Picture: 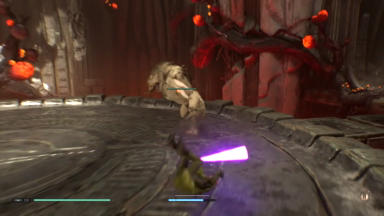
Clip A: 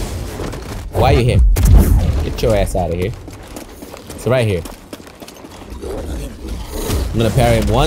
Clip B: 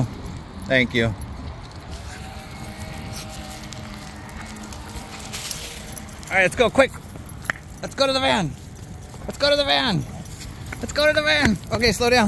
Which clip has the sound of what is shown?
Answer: A